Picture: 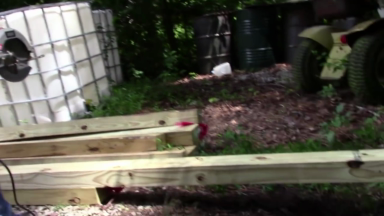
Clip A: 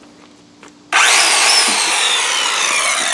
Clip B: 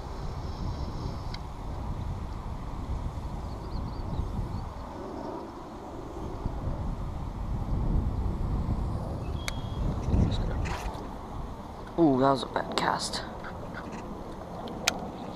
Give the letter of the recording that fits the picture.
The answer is A